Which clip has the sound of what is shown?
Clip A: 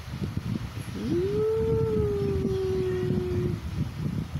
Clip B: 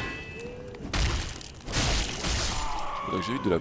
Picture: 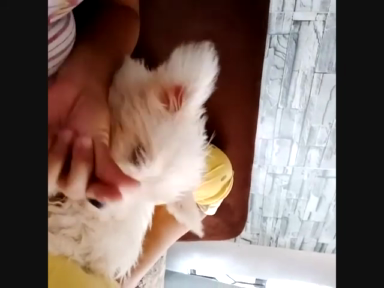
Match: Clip A